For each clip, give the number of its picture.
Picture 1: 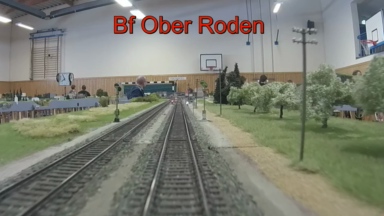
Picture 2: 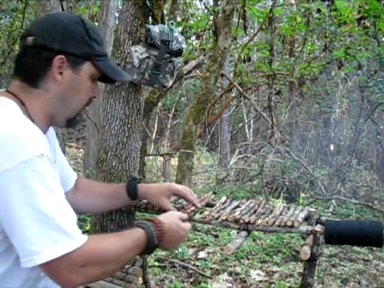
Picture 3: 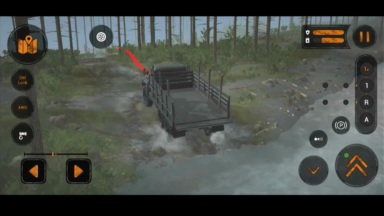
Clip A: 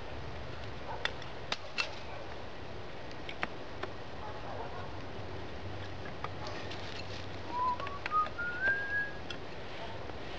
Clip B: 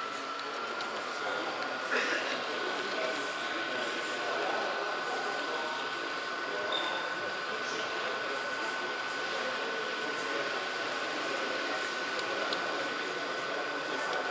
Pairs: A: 2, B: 1